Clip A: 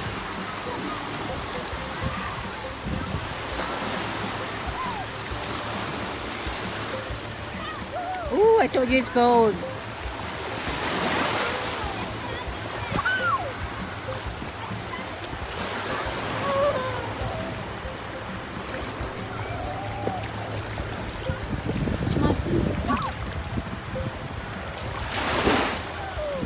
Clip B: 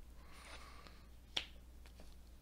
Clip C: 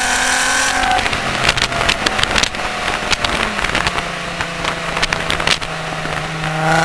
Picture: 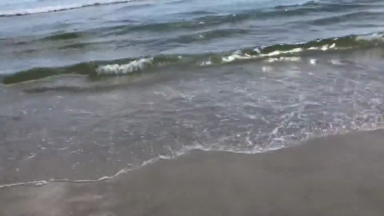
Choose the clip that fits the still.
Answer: A